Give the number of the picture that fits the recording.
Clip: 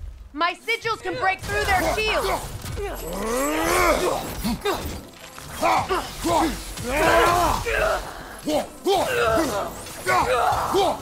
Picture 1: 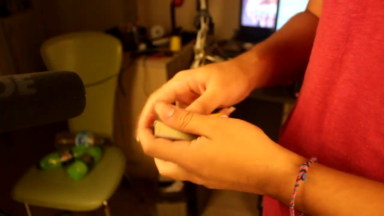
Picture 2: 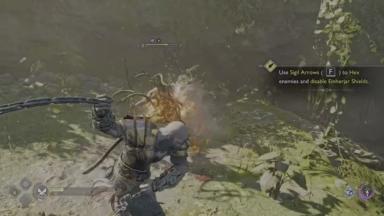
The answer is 2